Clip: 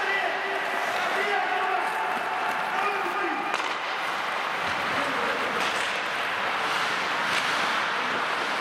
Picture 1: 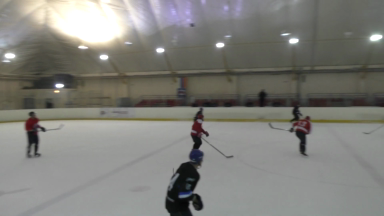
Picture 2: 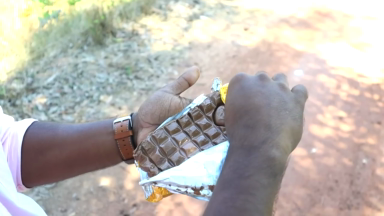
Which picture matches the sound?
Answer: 1